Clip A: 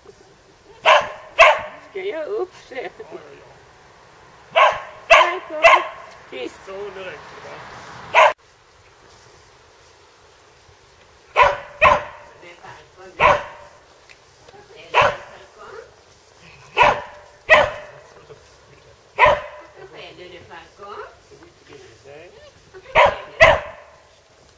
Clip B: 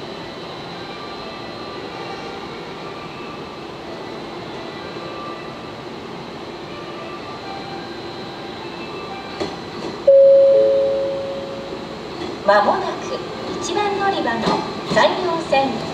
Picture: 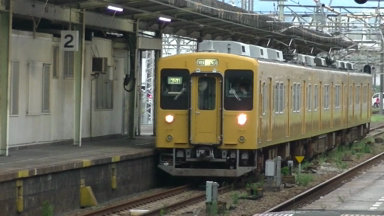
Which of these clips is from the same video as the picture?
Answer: B